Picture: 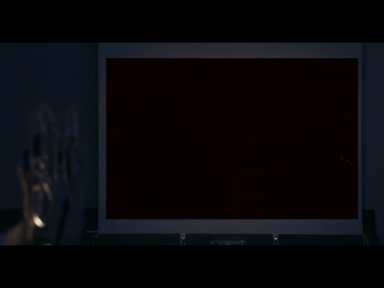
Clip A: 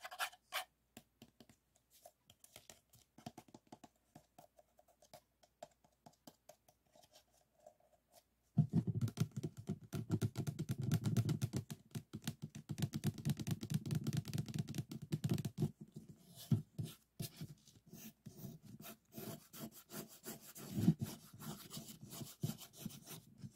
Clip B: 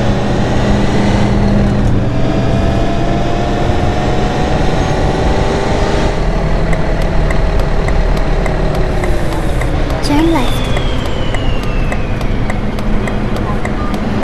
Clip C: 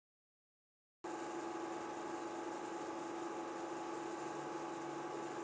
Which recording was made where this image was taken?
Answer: C